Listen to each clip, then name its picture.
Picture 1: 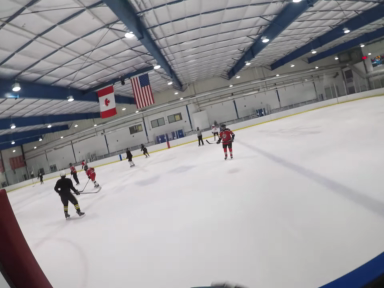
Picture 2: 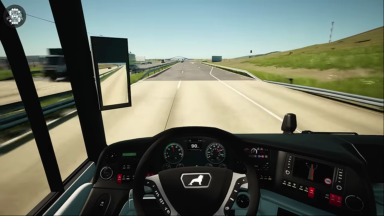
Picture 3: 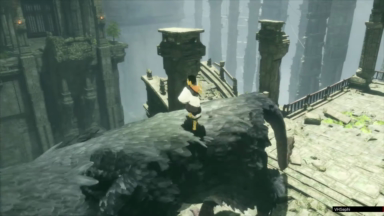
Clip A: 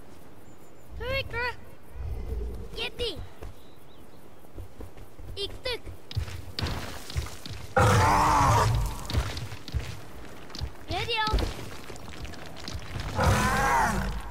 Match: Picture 3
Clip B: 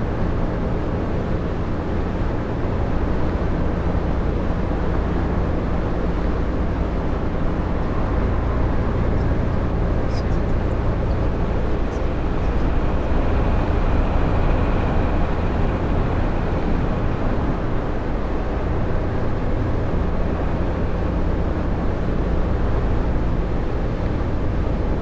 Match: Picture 2